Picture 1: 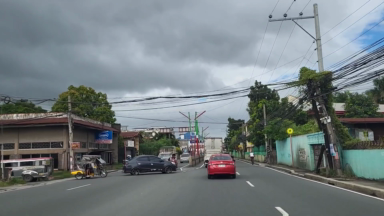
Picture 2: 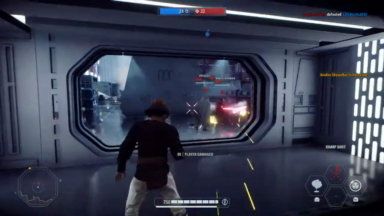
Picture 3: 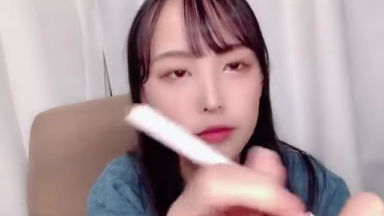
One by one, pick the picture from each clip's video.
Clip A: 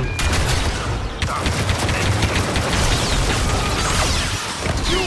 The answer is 2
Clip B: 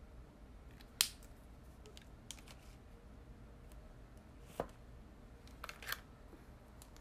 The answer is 3